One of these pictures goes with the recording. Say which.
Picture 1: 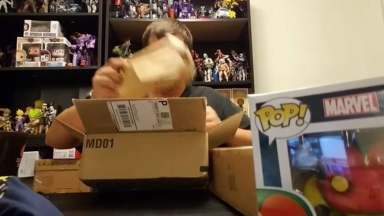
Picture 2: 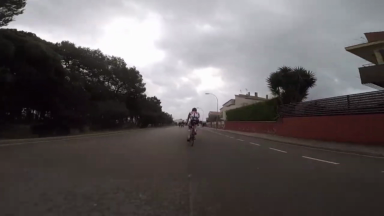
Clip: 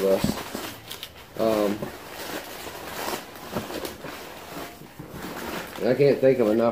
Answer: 1